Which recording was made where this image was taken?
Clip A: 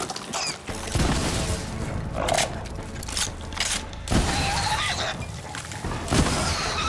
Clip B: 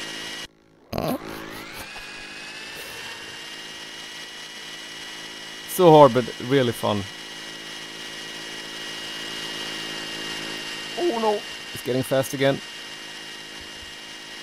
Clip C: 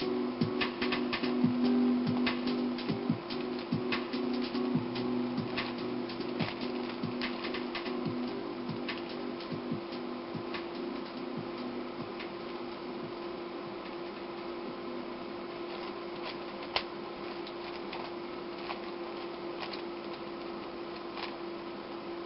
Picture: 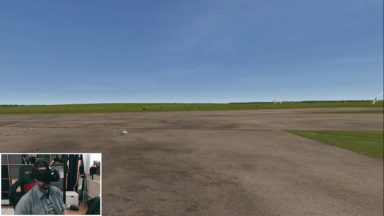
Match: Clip B